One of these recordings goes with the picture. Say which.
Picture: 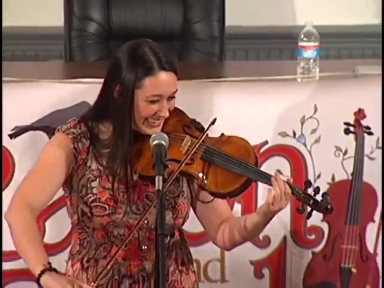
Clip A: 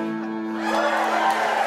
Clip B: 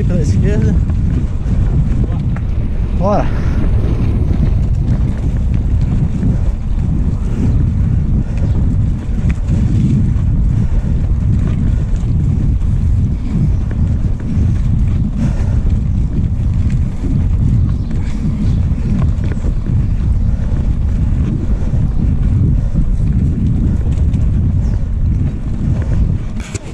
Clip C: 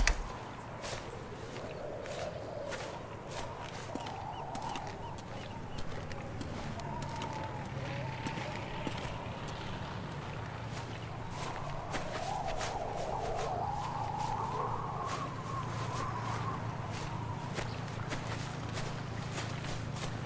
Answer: A